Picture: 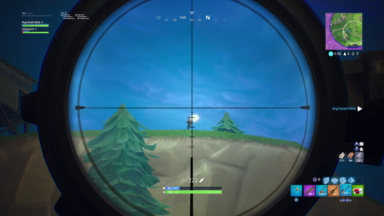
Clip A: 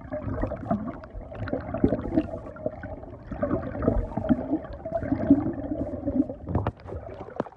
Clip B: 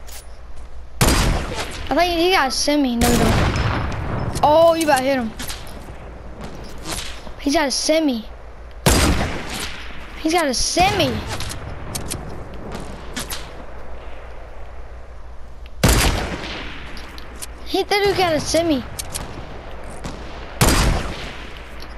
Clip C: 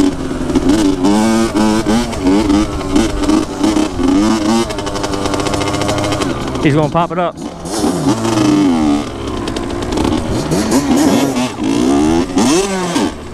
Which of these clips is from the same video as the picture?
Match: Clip B